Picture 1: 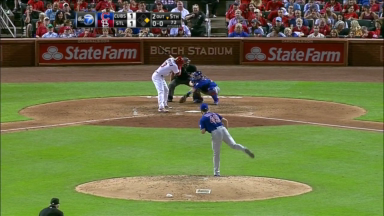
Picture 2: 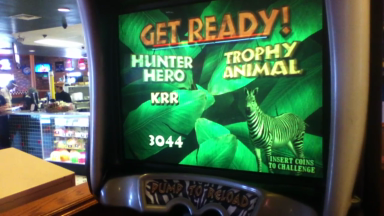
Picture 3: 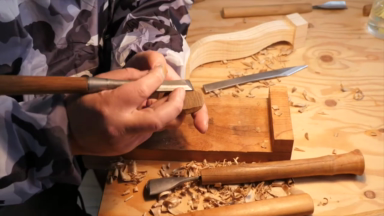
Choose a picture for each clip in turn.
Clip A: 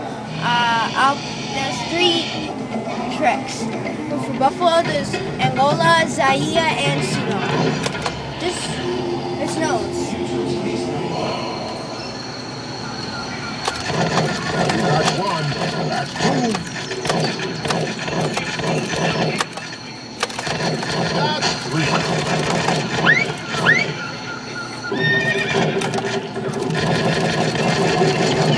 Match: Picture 2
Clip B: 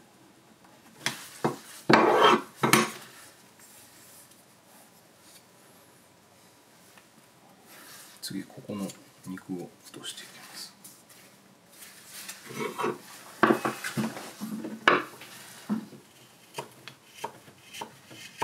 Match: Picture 3